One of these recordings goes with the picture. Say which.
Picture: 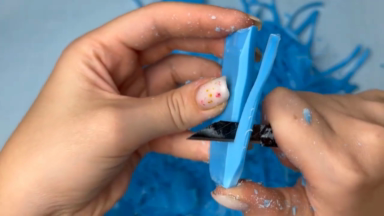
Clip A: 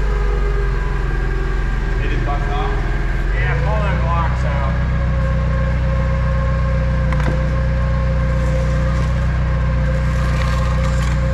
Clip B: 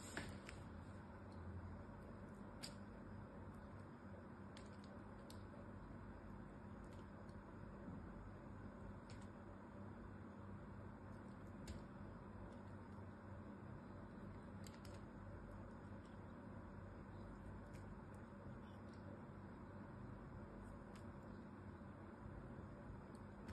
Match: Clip B